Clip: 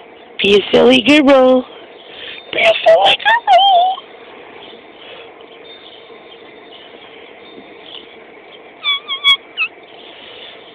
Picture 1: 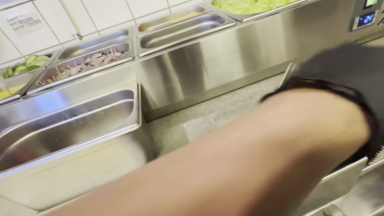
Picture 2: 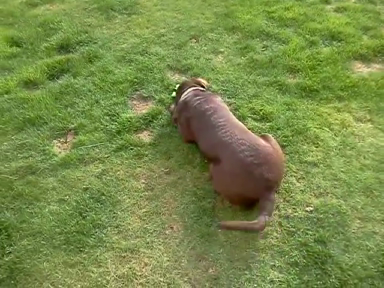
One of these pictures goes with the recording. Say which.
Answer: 2